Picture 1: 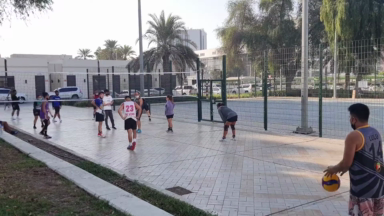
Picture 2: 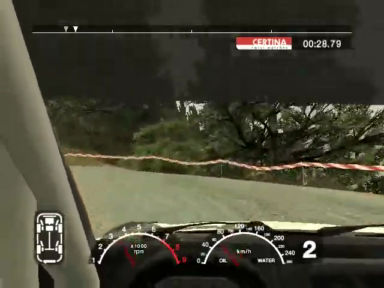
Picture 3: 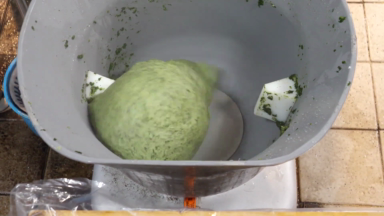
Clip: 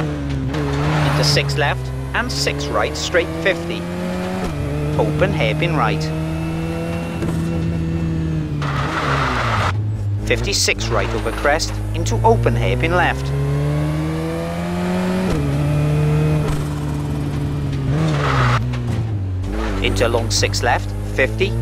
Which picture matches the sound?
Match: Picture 2